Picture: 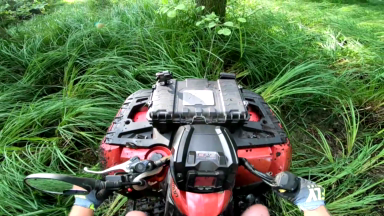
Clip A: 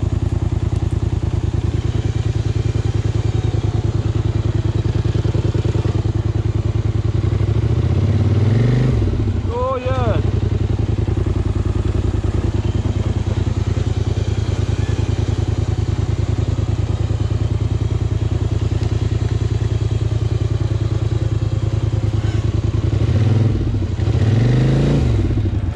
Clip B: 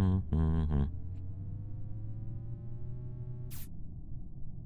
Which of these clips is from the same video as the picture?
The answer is A